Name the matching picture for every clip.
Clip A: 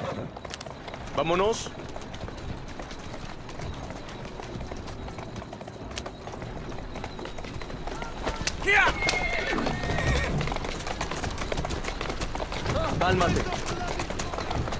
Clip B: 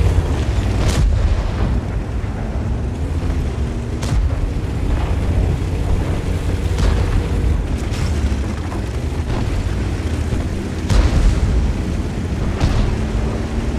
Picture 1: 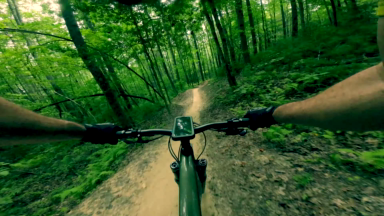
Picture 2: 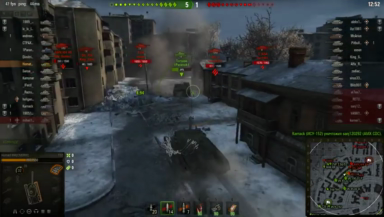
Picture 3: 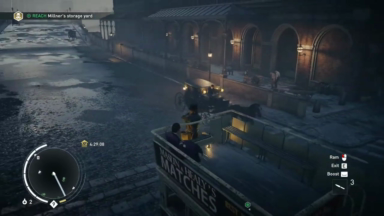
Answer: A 3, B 2